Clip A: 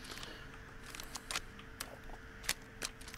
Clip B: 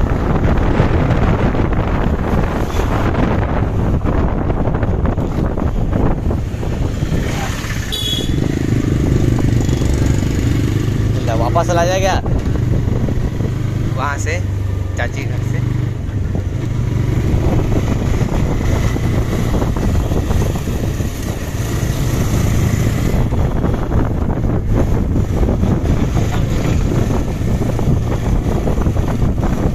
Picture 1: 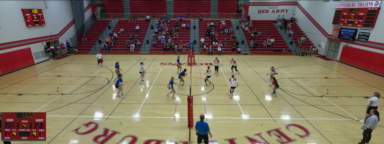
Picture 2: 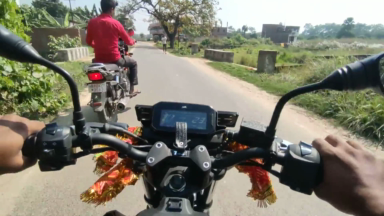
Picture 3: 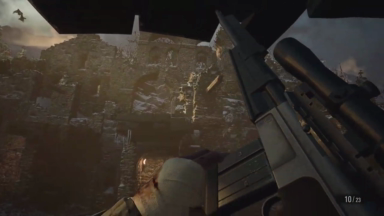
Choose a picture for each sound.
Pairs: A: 3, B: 2